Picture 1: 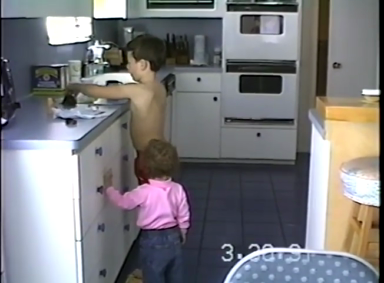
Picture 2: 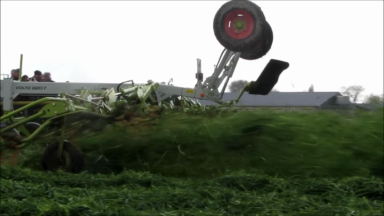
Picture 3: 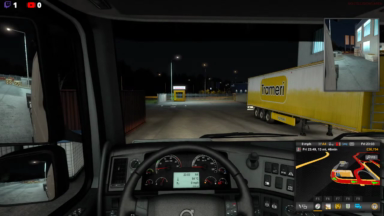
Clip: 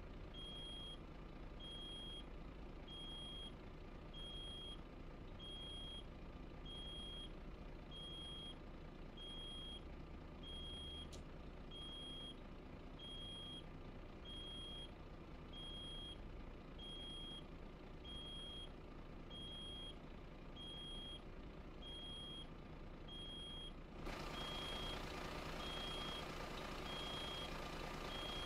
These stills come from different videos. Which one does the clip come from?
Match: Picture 3